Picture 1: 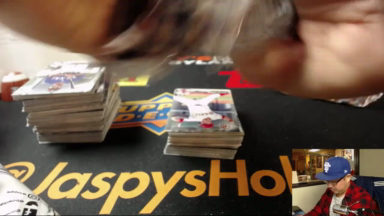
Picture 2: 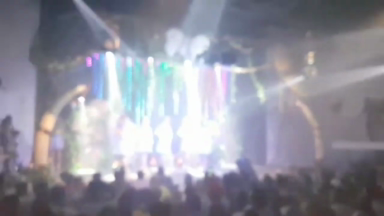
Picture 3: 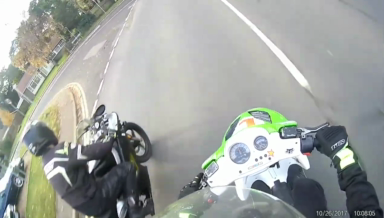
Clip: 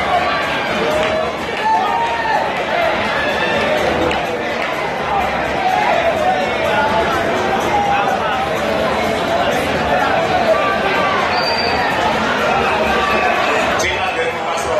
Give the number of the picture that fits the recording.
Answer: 2